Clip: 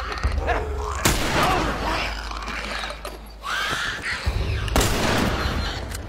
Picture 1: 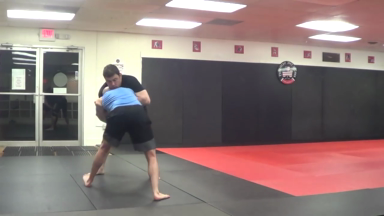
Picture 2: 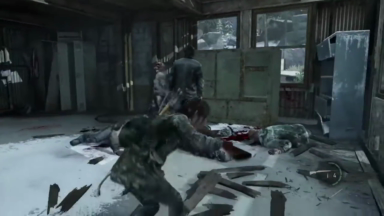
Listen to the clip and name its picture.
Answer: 2